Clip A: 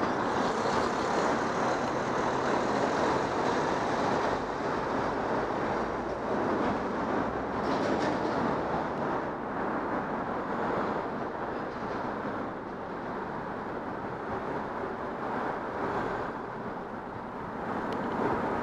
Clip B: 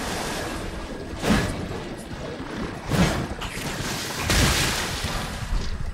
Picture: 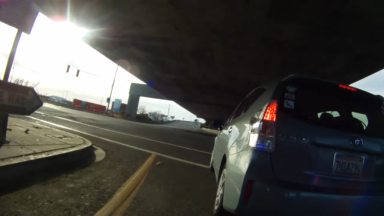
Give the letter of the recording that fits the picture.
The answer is A